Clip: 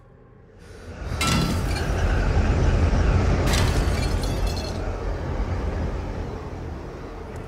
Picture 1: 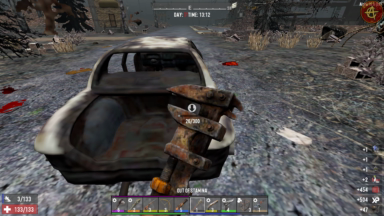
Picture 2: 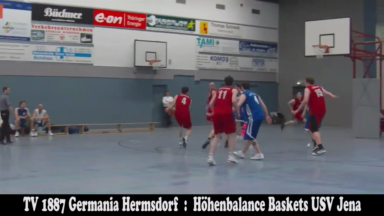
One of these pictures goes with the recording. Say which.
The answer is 1